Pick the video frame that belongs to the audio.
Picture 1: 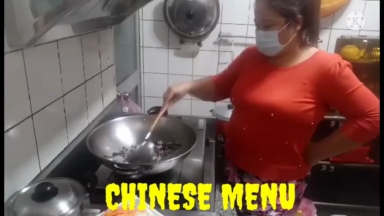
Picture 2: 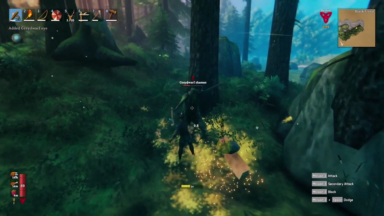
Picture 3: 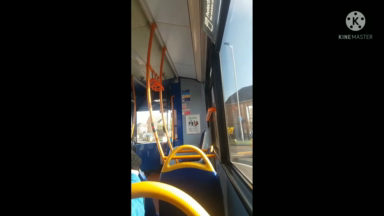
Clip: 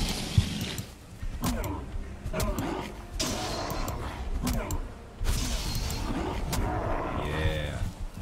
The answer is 2